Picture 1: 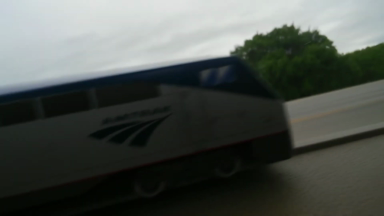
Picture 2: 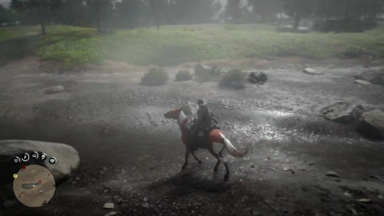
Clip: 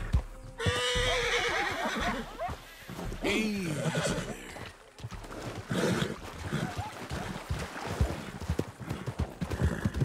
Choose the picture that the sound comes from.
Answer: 2